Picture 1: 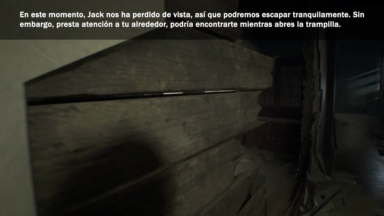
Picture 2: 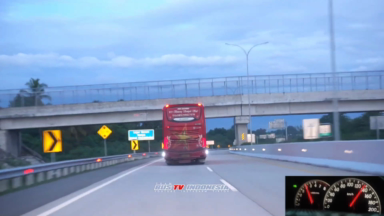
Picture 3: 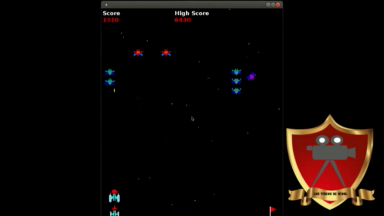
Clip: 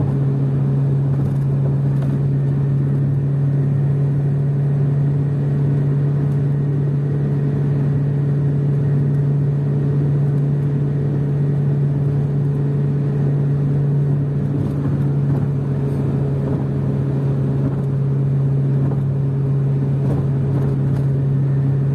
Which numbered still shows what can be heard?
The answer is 2